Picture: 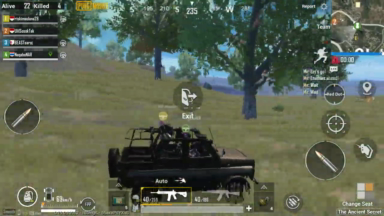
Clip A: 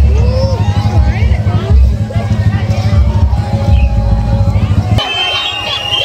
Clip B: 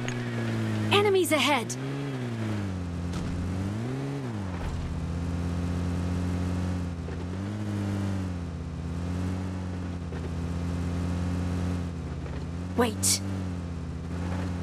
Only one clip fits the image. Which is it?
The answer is B